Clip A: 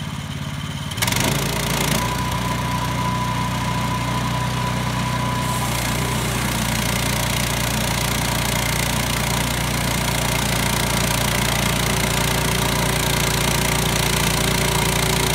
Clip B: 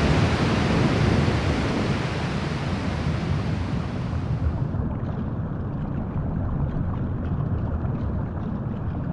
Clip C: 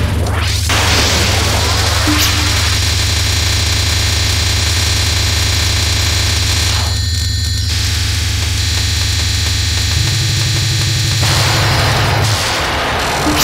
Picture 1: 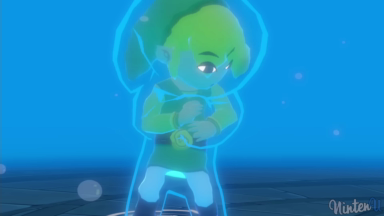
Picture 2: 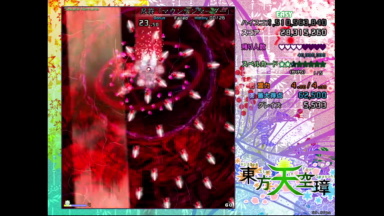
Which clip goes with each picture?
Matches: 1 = B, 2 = C